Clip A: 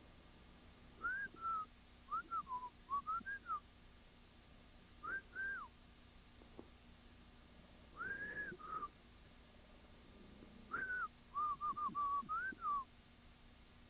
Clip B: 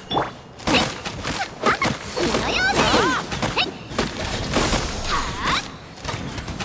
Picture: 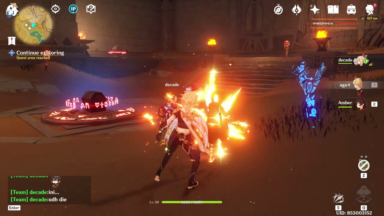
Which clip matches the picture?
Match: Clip B